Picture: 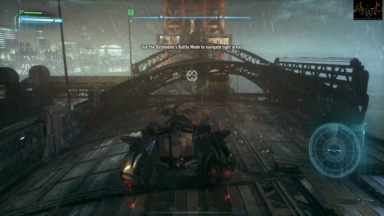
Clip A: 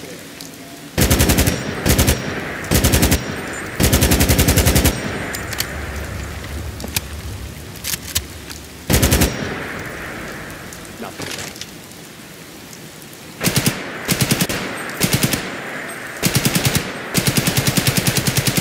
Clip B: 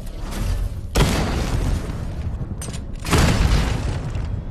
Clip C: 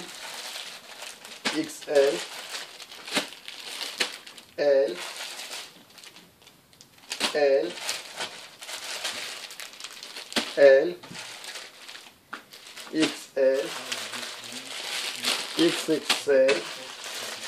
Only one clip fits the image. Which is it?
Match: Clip B